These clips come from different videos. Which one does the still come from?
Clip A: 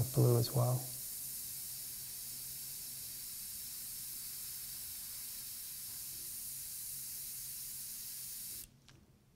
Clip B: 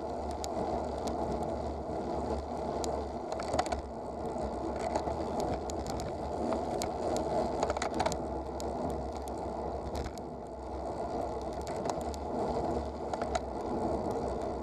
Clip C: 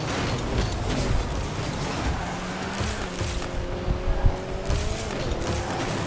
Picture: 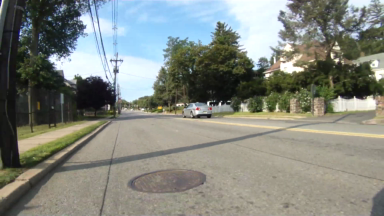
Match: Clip B